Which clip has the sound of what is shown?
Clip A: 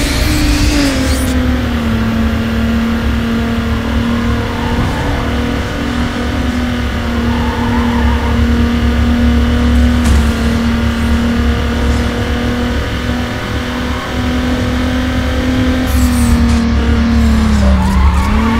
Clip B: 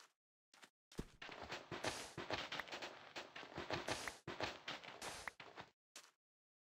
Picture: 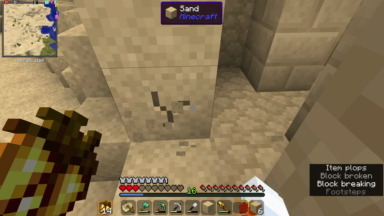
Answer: B